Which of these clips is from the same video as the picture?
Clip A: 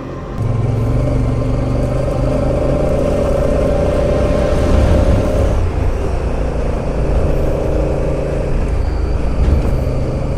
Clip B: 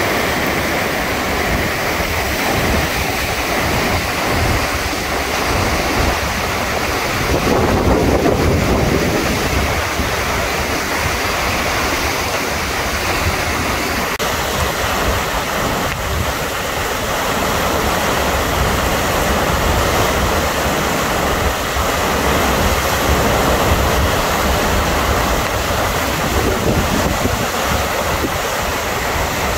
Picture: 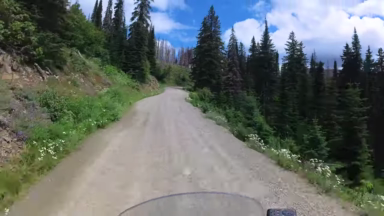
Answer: A